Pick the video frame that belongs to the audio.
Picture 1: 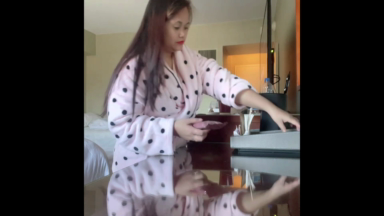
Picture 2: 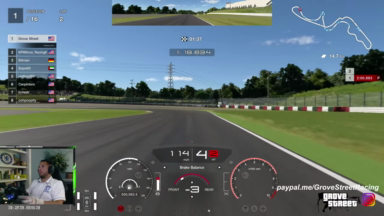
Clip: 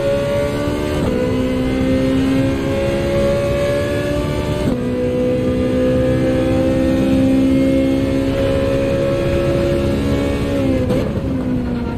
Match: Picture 2